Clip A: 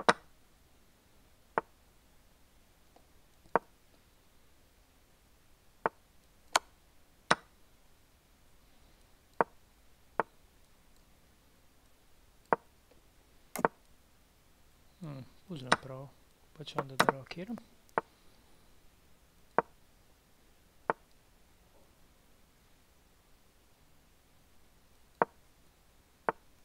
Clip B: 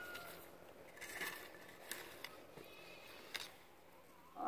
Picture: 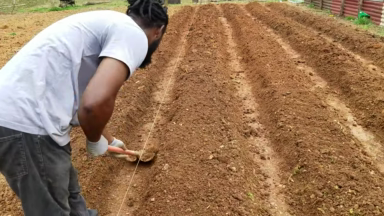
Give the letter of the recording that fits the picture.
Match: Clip B